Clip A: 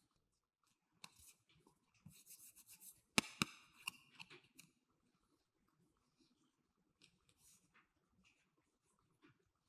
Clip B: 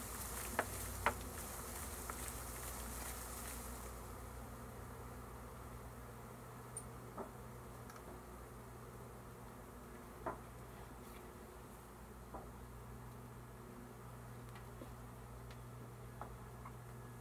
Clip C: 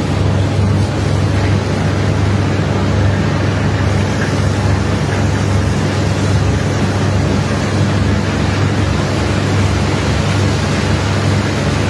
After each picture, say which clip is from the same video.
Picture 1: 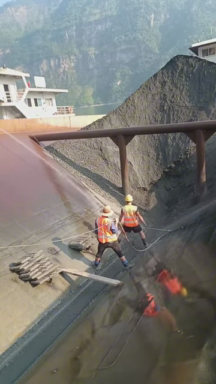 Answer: C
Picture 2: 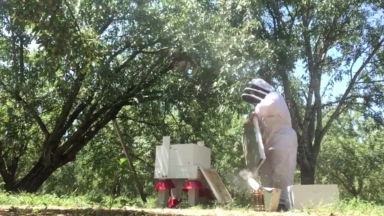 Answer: B